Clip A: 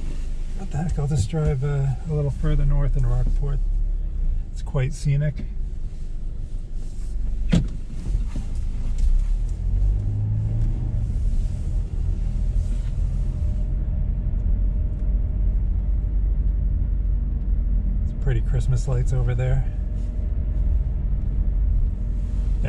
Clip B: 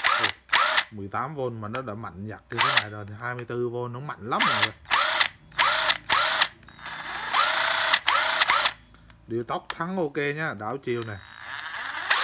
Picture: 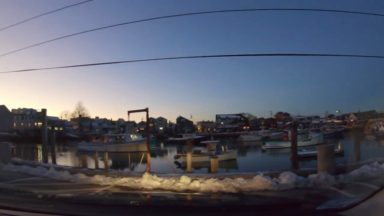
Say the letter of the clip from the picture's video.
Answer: A